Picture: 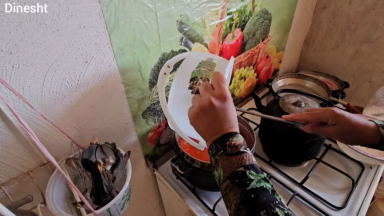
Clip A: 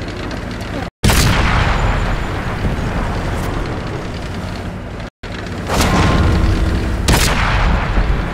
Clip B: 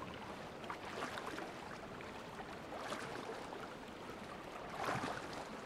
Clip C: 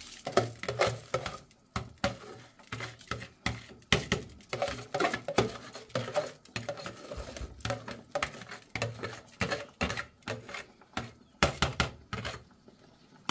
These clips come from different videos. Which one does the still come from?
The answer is C